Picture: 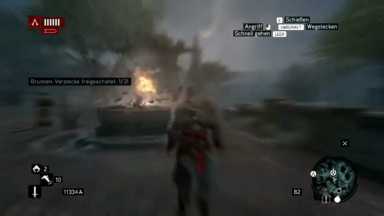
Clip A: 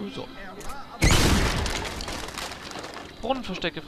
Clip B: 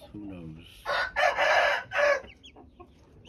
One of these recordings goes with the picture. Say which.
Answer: A